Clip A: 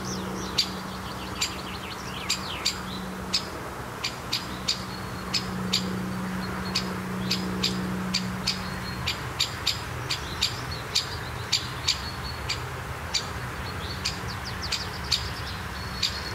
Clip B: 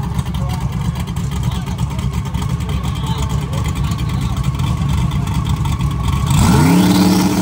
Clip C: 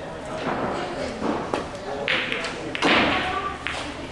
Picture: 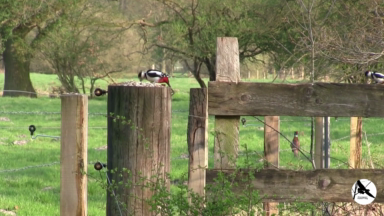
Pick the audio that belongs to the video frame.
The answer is A